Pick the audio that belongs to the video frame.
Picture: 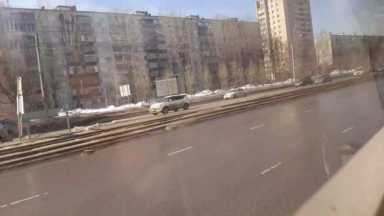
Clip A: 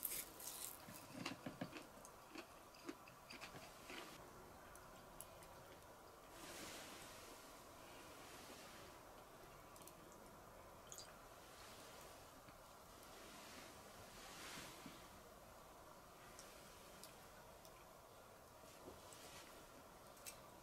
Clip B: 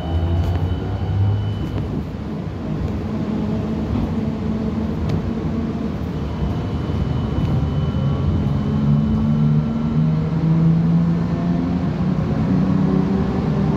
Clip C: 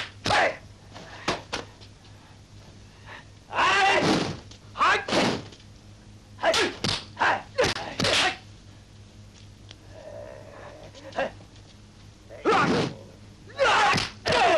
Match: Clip B